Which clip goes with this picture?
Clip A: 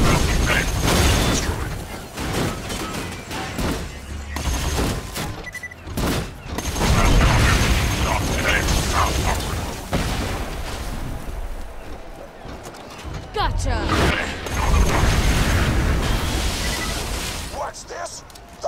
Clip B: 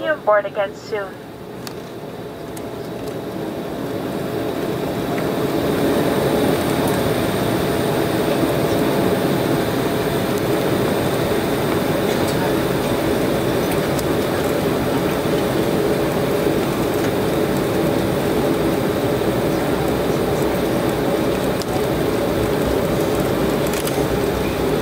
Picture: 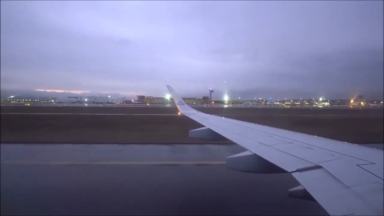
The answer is B